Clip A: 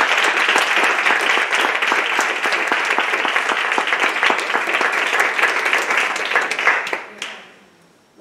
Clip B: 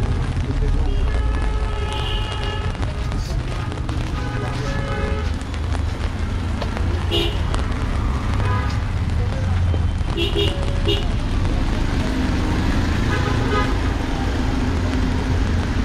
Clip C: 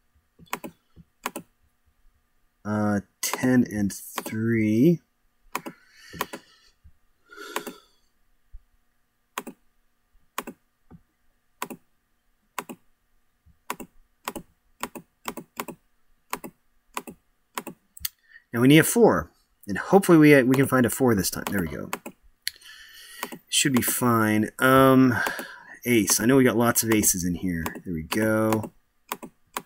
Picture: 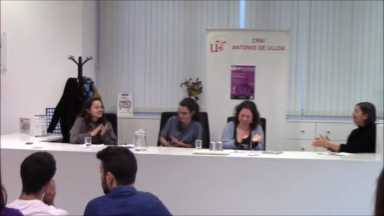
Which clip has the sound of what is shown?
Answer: A